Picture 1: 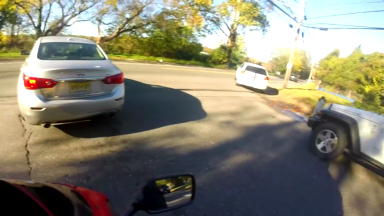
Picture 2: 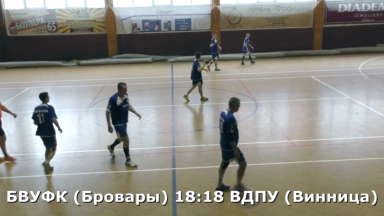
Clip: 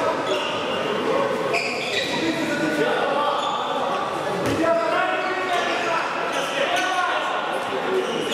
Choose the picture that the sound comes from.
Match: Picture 2